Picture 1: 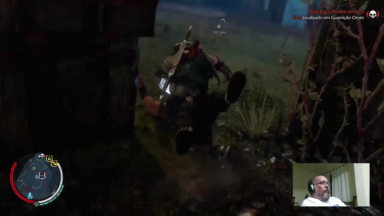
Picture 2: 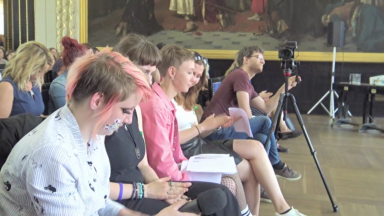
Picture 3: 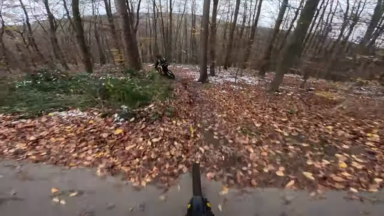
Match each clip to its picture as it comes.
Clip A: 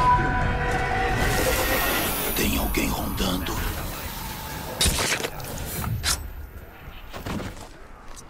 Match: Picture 1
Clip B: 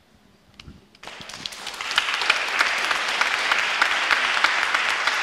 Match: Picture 2